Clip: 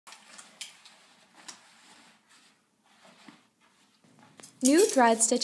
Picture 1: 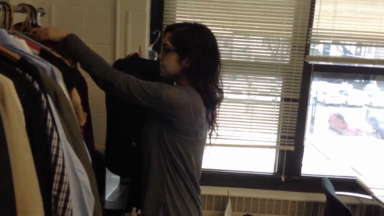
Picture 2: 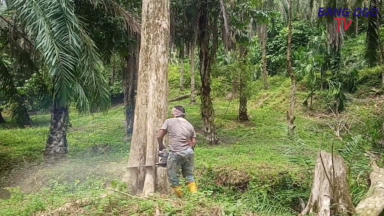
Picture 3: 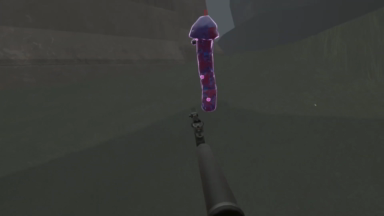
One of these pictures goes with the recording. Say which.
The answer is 1